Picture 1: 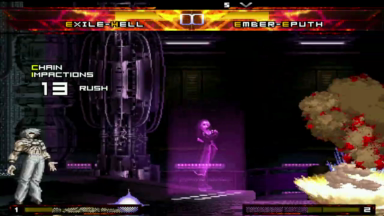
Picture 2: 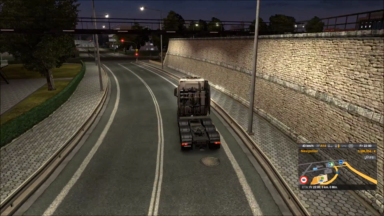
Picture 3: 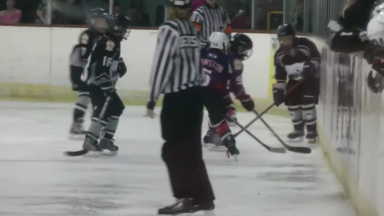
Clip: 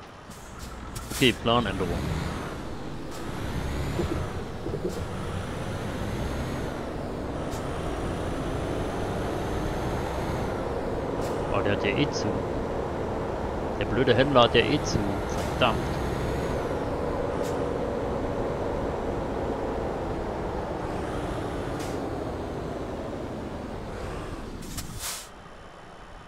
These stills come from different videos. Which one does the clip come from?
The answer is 2